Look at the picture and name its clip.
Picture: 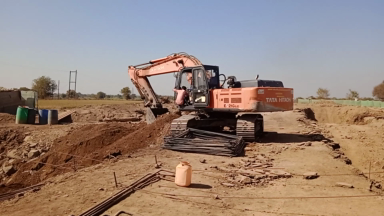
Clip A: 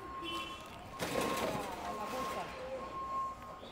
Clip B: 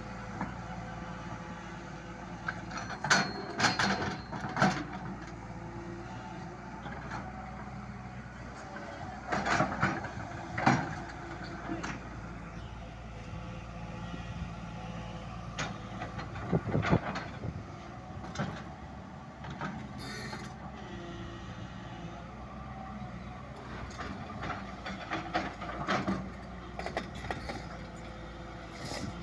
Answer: B